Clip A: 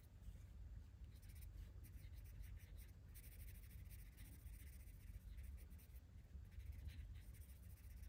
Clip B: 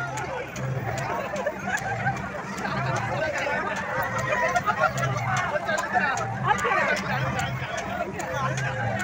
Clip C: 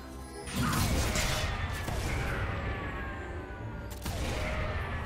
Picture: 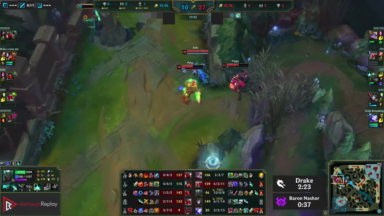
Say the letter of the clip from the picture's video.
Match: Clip C